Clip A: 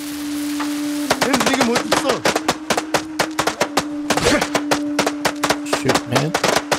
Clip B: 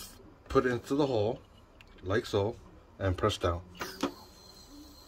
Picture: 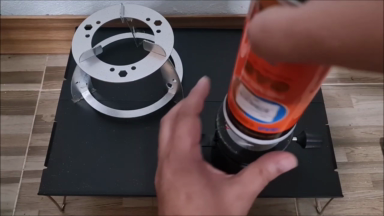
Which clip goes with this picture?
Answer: B